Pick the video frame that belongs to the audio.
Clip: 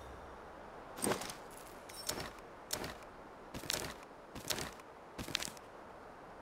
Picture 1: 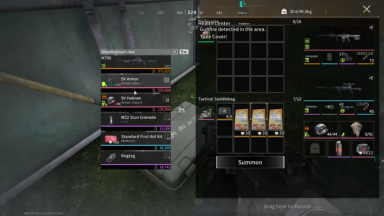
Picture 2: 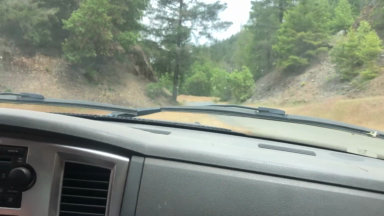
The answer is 1